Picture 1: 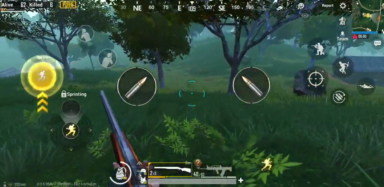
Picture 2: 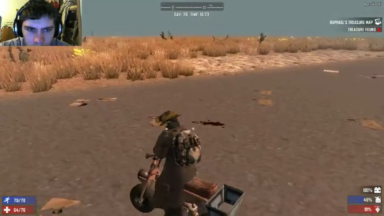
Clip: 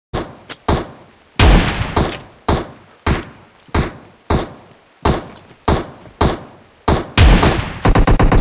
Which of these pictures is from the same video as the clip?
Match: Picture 1